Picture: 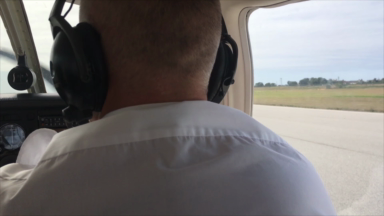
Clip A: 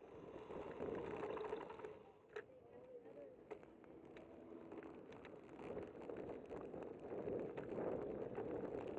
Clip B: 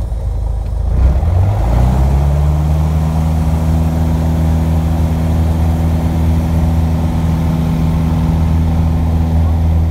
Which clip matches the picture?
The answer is B